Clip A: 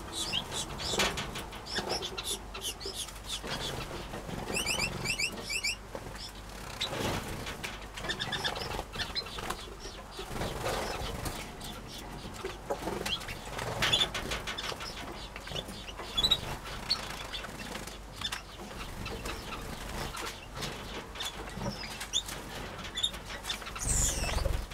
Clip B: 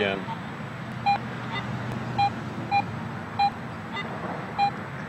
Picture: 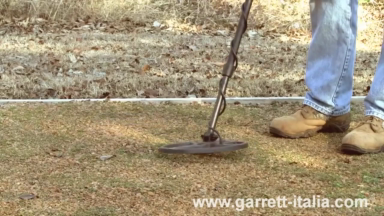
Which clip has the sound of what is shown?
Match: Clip B